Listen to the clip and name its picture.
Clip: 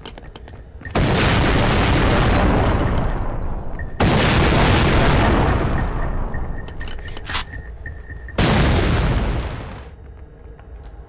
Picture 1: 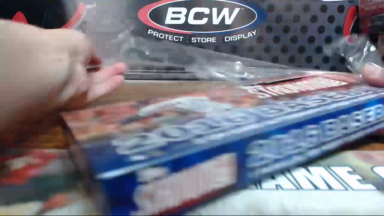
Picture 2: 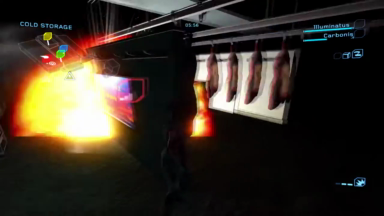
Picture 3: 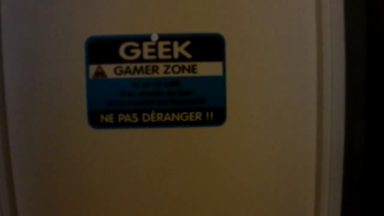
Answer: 2